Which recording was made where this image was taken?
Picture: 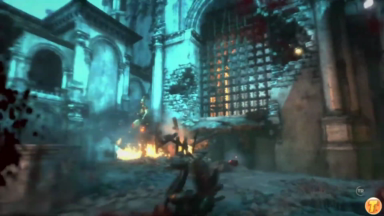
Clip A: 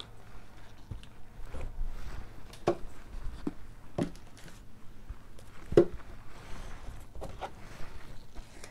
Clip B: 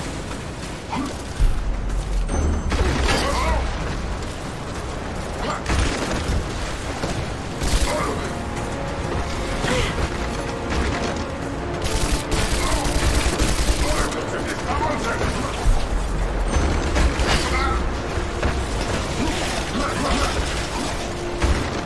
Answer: B